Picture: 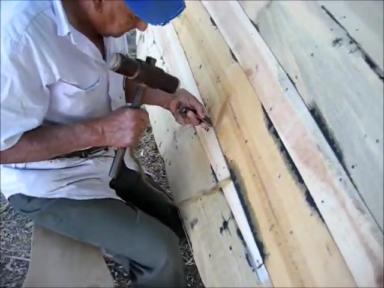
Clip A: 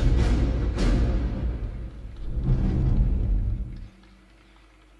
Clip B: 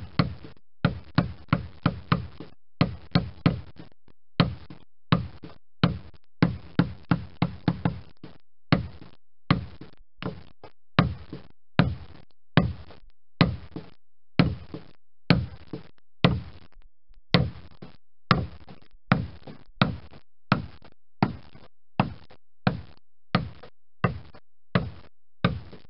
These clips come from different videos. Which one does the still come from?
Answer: B